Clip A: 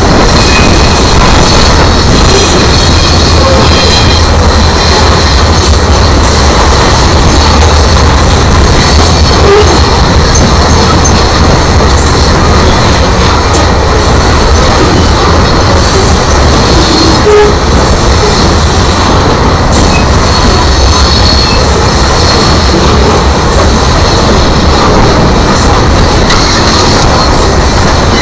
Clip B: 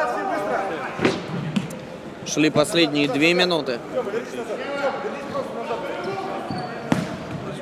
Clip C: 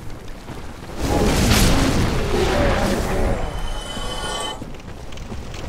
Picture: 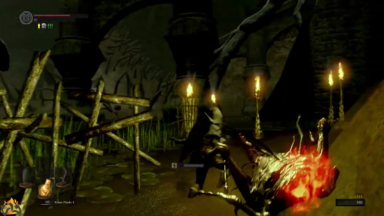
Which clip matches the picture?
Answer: C